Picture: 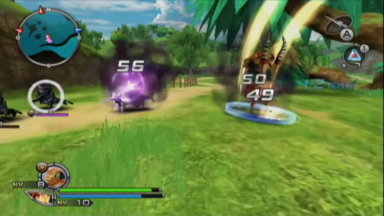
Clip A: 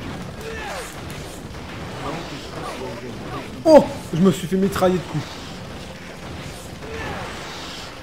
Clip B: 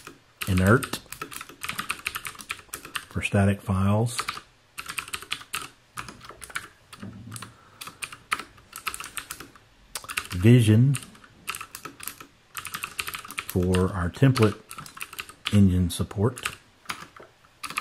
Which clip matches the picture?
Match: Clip A